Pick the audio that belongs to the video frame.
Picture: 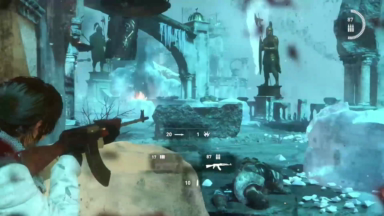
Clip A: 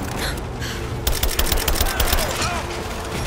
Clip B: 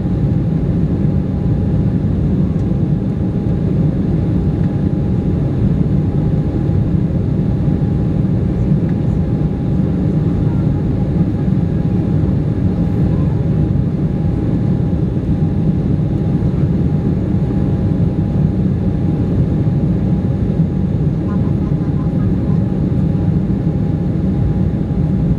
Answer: A